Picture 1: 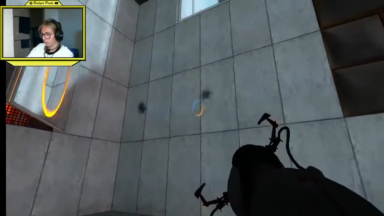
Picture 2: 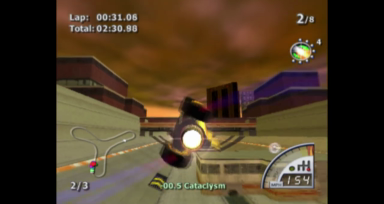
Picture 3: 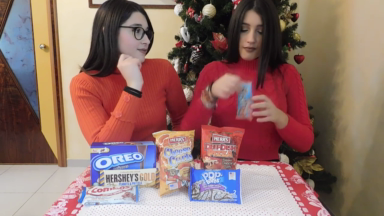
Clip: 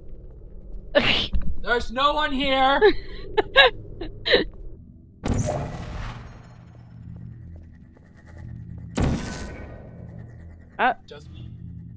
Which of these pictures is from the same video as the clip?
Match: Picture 1